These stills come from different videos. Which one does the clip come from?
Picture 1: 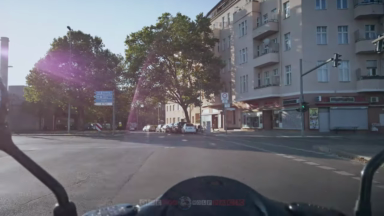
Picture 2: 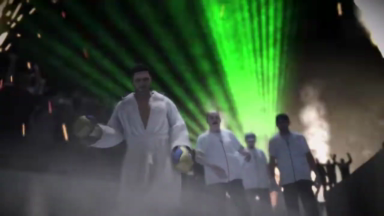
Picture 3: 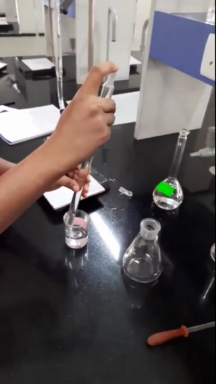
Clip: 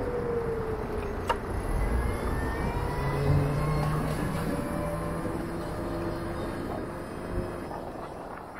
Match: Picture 1